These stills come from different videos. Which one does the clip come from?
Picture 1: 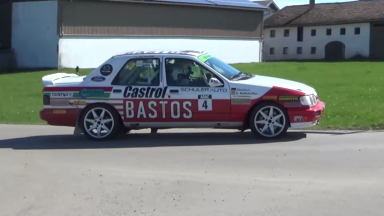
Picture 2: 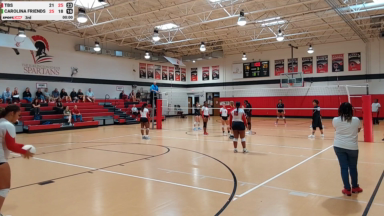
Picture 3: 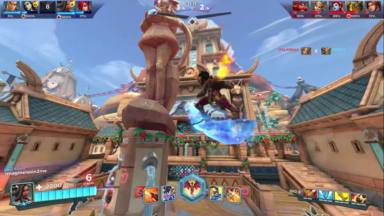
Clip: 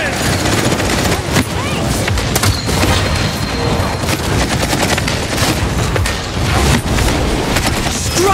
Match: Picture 3